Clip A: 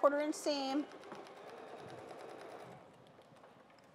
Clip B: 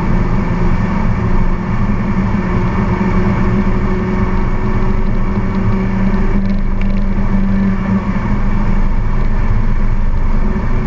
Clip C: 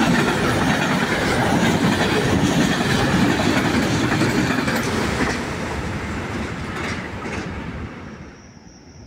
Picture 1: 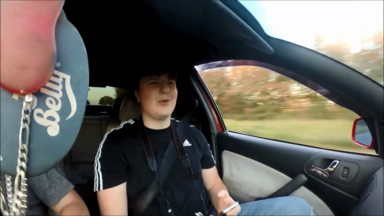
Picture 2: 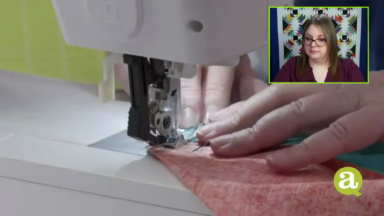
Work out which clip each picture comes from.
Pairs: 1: B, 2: A